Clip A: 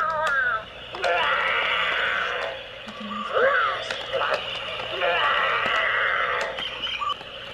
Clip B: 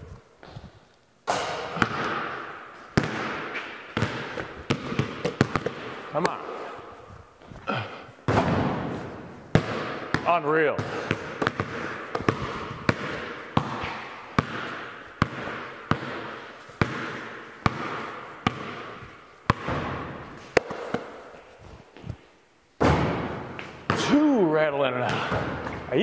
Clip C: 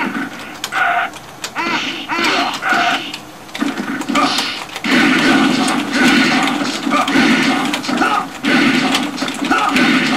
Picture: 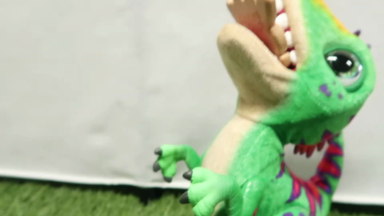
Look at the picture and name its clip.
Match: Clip A